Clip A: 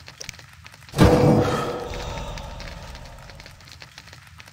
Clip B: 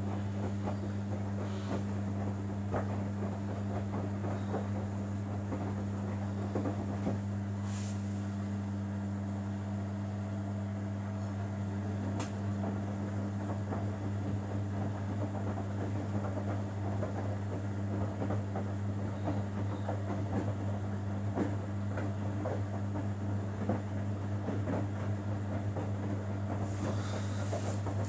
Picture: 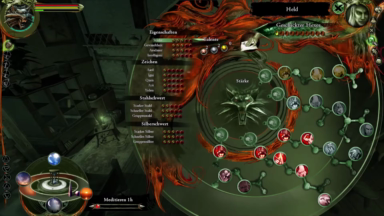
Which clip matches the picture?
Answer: A